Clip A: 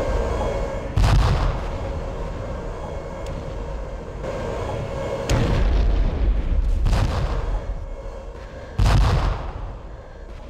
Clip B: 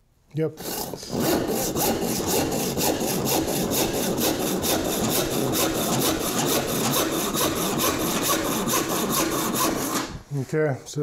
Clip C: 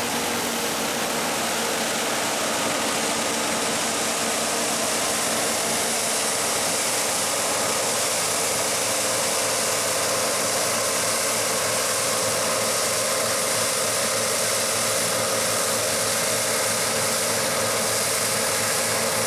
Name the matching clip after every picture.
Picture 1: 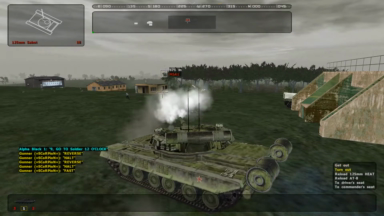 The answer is A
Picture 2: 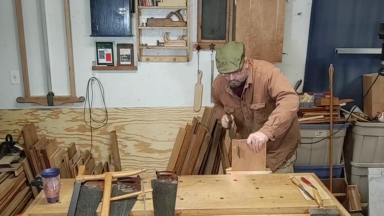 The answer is B